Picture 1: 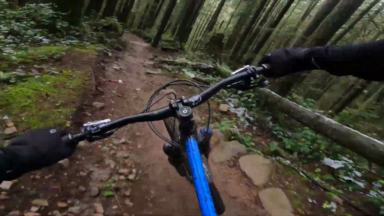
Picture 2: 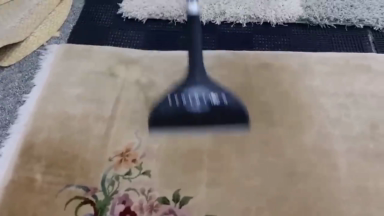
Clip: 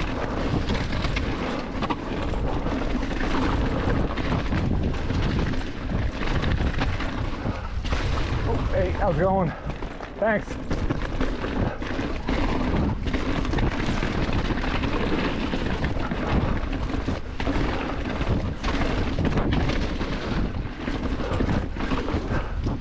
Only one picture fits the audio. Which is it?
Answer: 1